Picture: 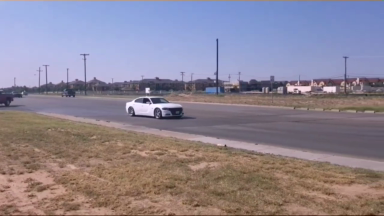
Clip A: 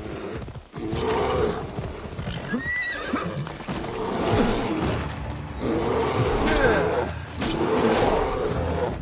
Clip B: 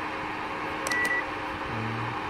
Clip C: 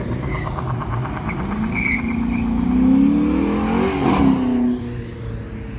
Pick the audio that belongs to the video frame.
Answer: C